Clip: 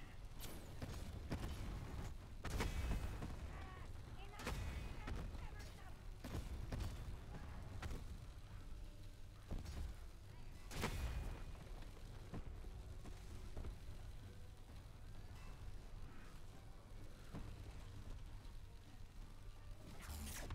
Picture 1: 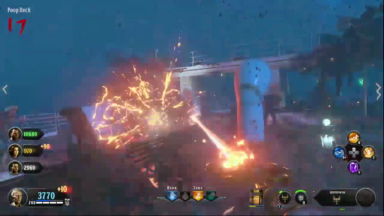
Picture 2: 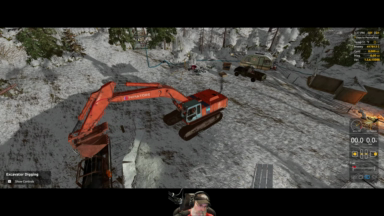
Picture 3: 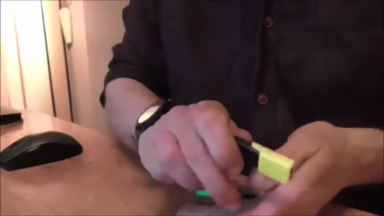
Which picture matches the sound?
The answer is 1